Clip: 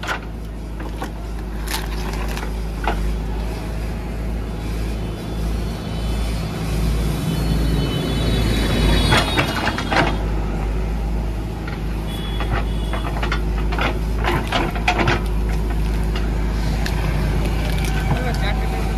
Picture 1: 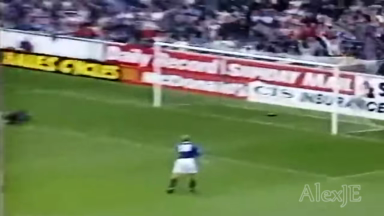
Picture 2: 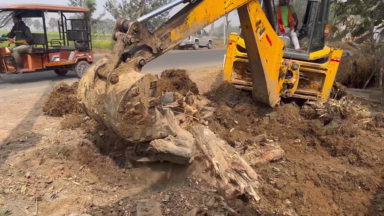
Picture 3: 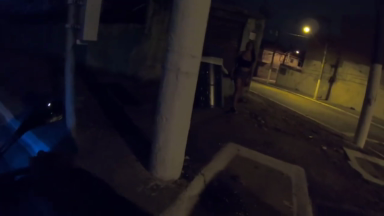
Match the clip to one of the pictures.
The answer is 2